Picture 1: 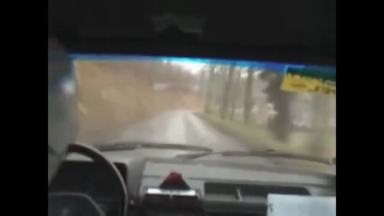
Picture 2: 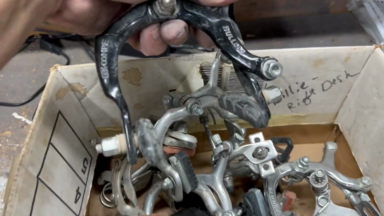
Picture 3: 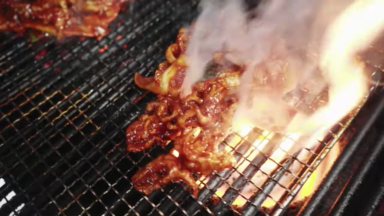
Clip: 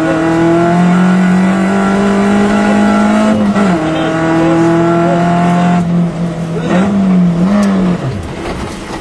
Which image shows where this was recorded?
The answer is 1